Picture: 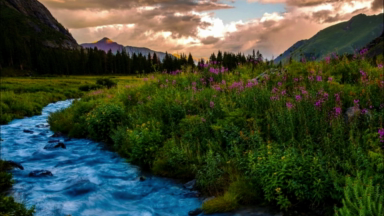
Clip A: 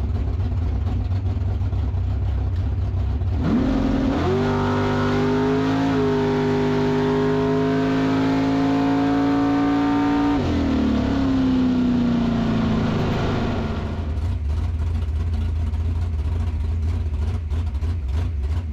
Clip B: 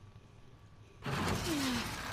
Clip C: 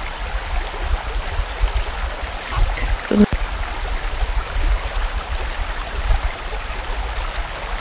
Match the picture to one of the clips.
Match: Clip C